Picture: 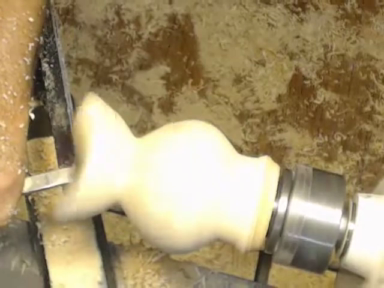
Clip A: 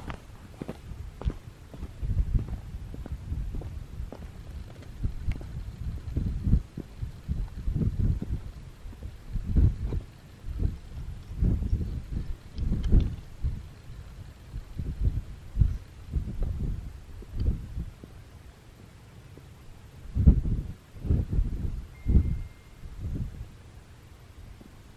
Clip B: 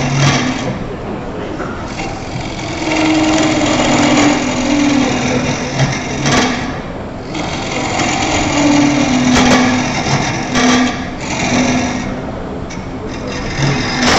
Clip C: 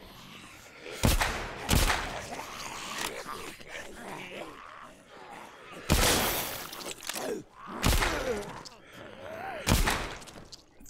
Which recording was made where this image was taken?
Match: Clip B